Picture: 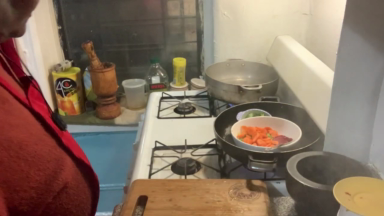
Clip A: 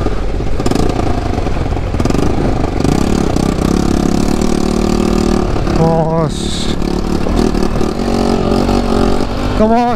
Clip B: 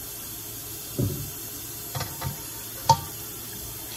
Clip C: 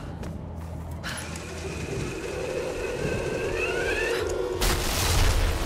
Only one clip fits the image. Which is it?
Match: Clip B